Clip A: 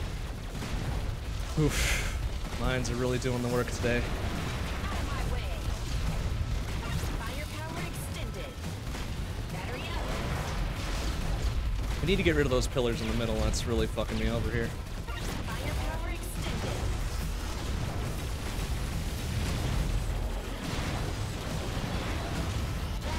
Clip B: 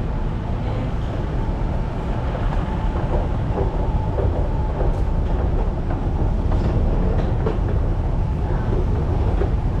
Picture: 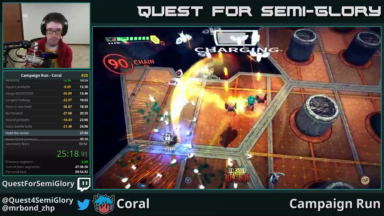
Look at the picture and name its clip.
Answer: A